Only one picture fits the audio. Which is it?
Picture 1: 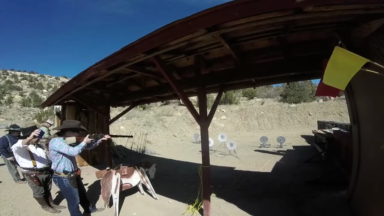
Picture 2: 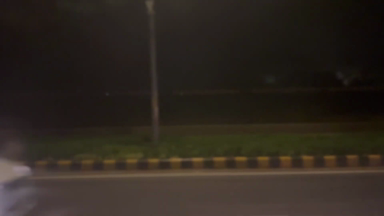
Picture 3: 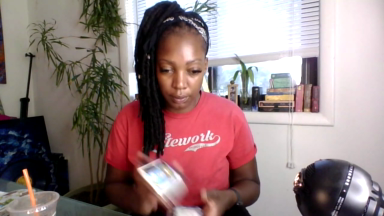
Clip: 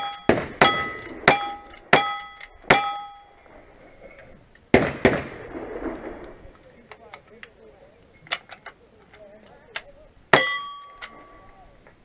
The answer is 1